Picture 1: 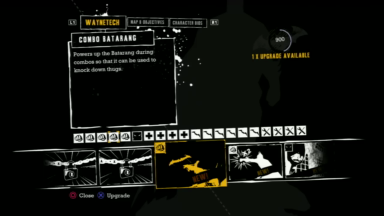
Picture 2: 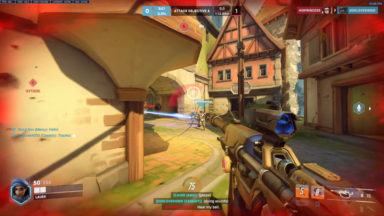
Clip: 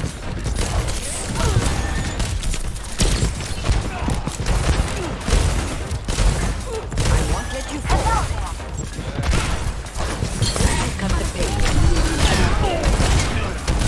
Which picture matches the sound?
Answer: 2